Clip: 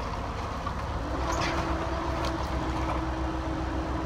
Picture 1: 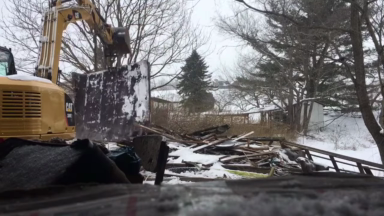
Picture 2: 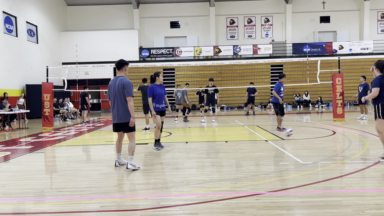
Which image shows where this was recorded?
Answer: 1